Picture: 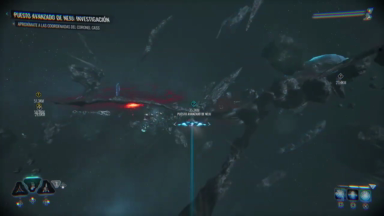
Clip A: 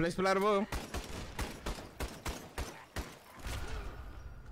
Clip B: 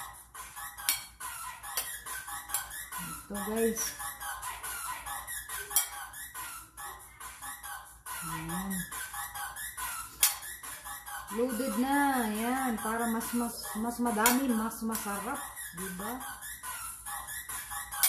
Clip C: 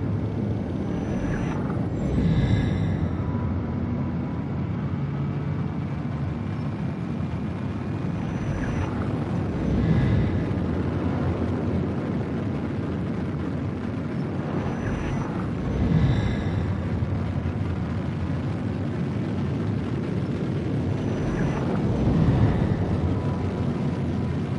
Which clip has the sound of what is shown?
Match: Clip C